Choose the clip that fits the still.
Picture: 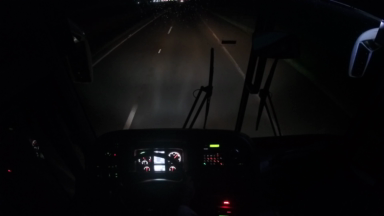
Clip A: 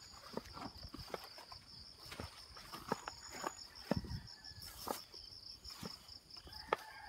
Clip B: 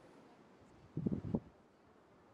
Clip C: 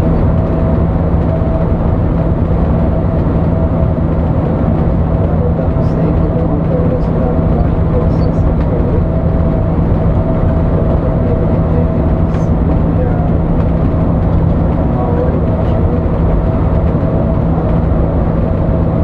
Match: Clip C